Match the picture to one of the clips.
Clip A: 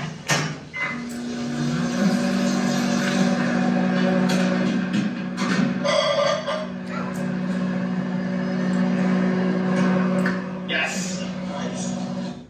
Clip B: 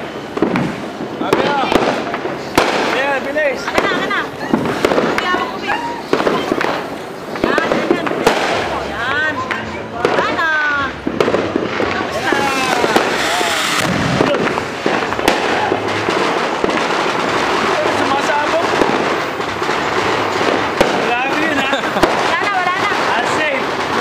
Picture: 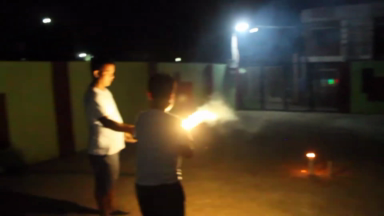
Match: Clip B